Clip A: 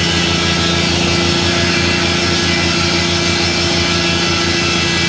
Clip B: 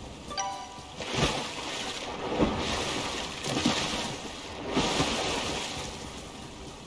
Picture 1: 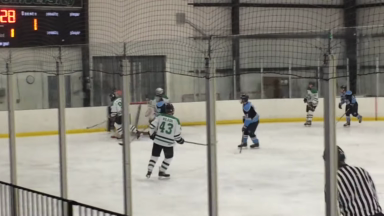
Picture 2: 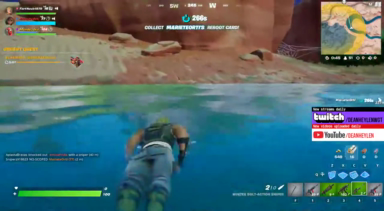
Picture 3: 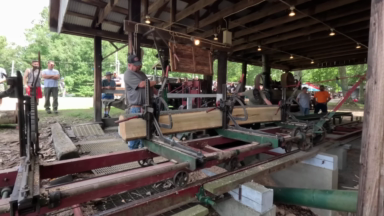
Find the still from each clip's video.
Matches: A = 3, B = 2